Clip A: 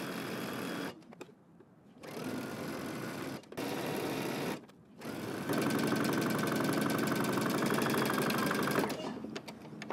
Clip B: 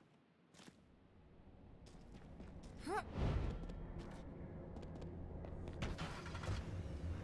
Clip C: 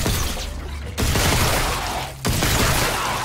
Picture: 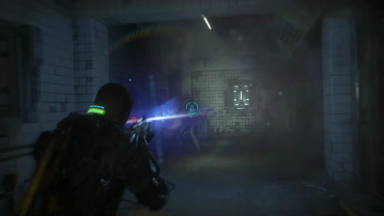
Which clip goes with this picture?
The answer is C